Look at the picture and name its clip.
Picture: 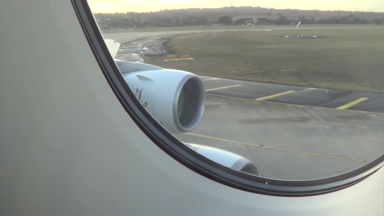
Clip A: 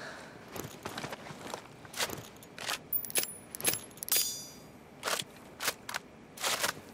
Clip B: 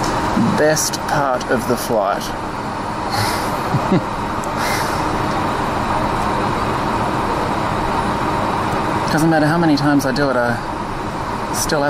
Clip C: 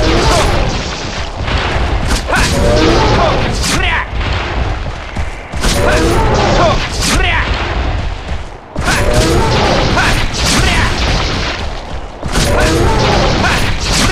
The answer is B